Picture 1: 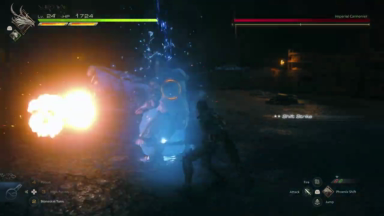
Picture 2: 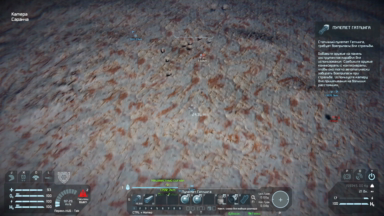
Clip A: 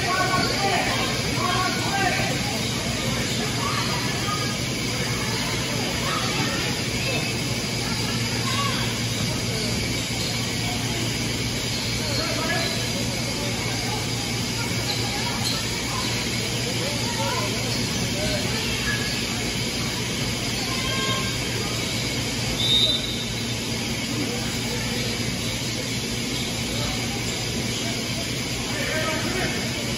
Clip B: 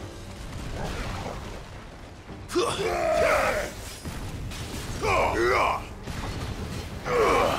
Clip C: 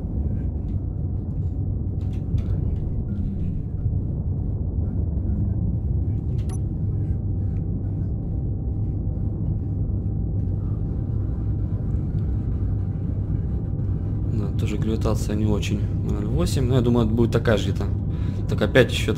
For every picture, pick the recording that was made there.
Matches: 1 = B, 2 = C